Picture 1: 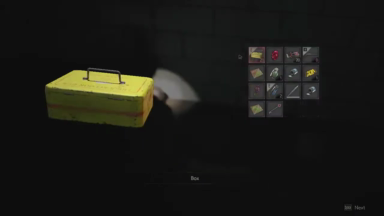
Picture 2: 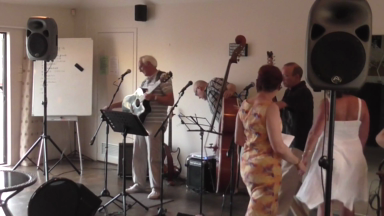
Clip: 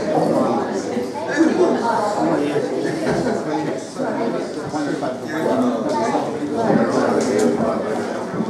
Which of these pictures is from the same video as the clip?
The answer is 2